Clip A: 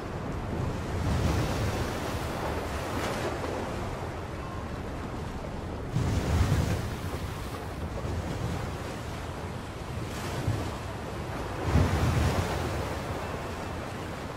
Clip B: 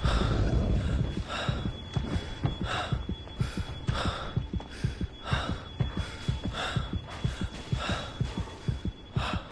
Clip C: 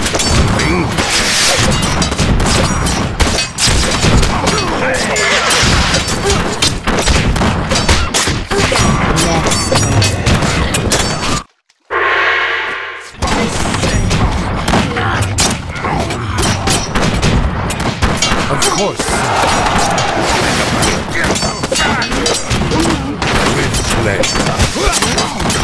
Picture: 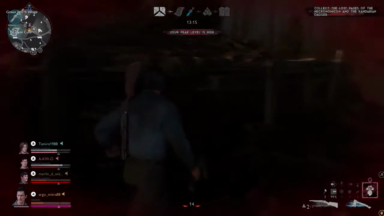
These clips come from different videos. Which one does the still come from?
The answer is B